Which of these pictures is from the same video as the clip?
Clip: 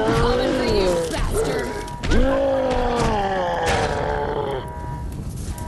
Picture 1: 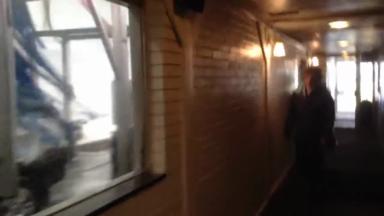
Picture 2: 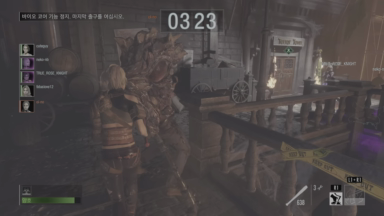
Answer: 2